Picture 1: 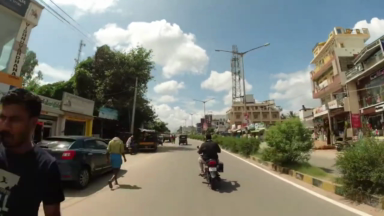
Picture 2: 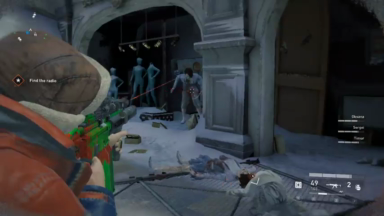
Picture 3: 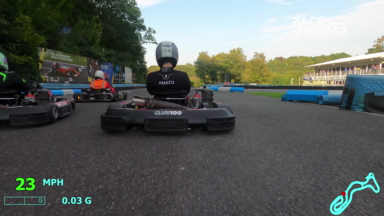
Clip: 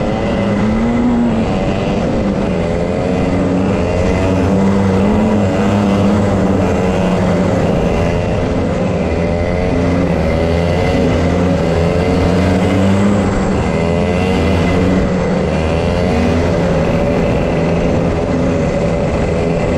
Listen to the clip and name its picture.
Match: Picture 3